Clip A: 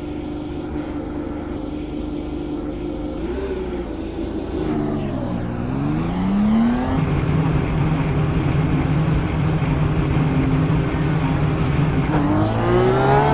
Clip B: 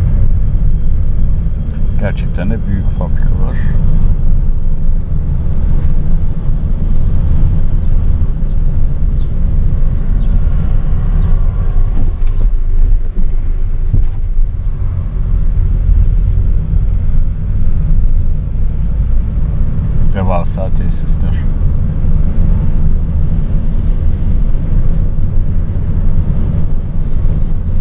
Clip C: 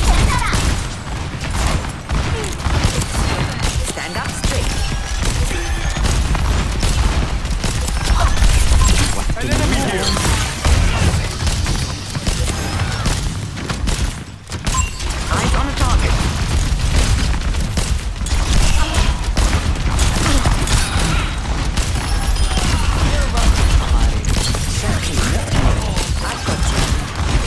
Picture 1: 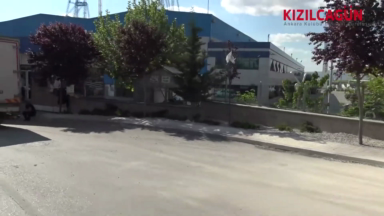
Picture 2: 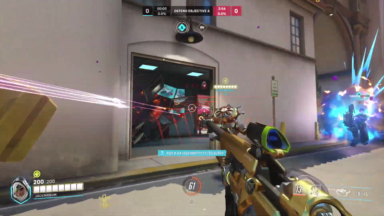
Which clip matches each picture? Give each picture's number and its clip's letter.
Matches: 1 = B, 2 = C